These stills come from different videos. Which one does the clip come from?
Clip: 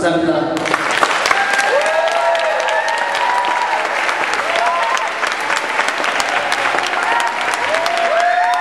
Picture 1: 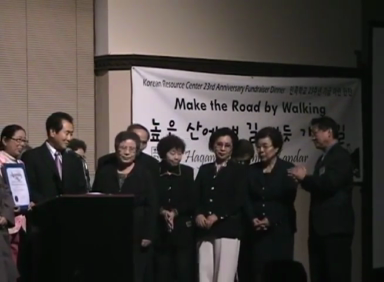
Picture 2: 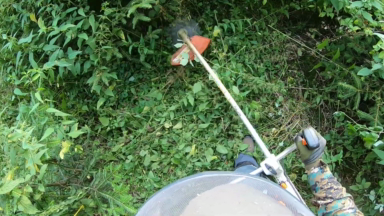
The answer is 1